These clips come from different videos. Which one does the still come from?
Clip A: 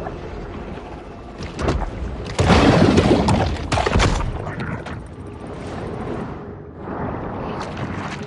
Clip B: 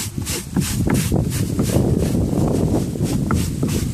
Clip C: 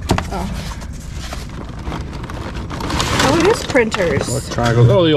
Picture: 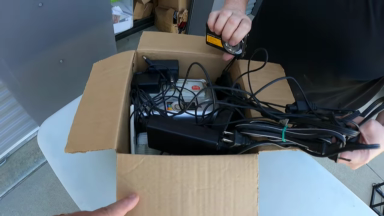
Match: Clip C